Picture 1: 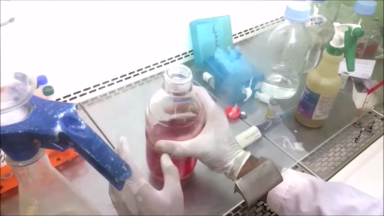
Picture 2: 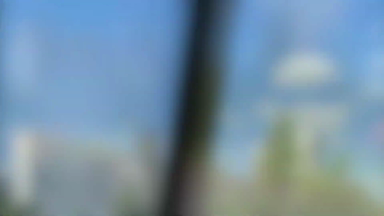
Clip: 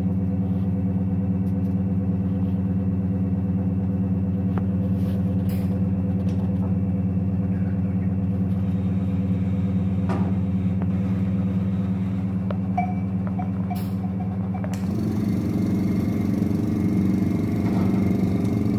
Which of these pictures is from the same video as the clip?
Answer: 1